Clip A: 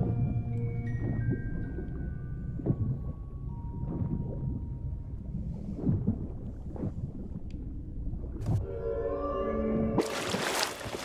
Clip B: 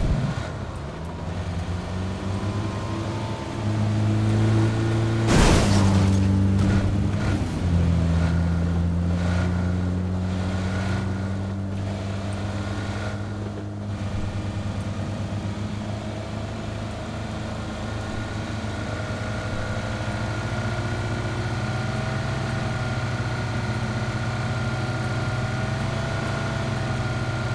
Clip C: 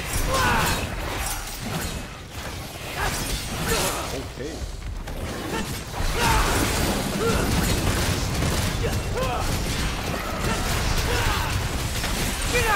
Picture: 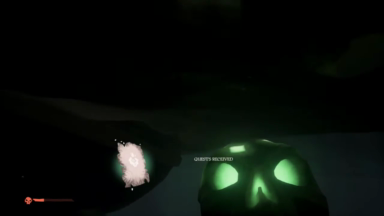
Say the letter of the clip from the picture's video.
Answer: A